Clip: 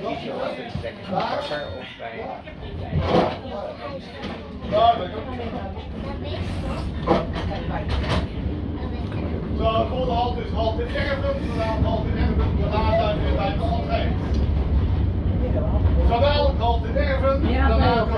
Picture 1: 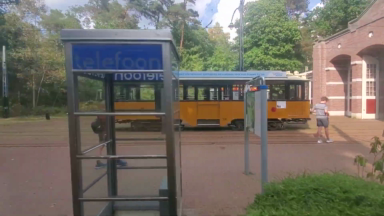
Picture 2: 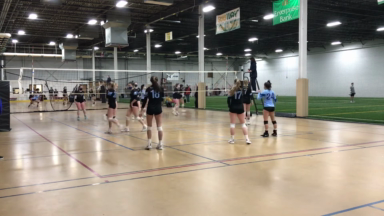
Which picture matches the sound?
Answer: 1